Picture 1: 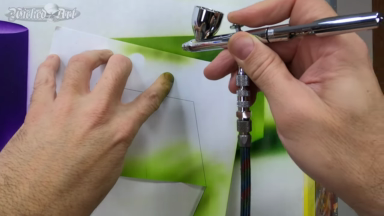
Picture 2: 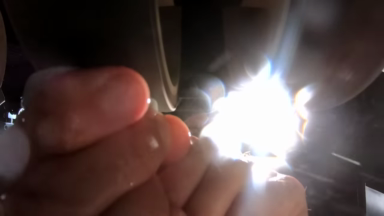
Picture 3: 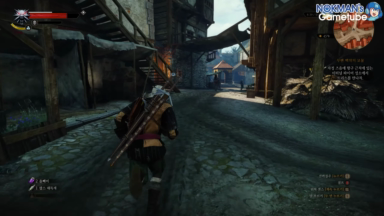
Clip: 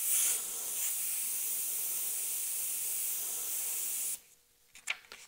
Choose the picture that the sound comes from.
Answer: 1